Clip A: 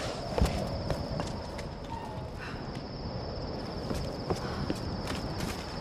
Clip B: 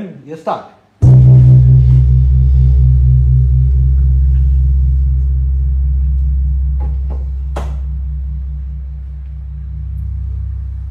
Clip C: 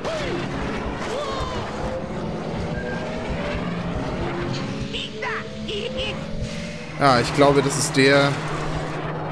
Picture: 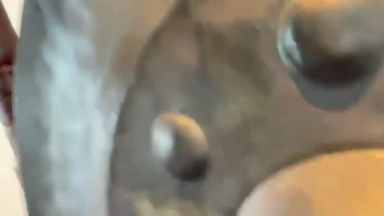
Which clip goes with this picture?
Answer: B